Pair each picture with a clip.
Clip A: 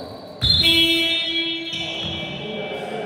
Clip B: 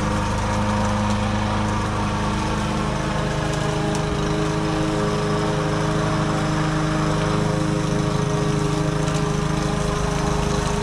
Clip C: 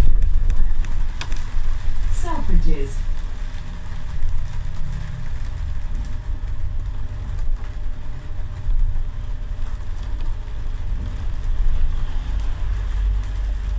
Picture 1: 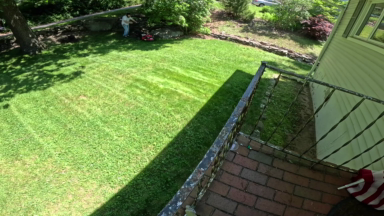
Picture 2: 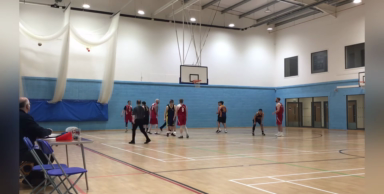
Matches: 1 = B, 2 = A